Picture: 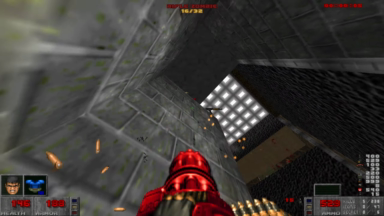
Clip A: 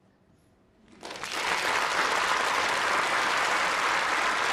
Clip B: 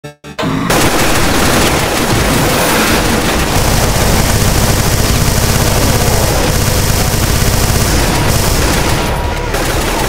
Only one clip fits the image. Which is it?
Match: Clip B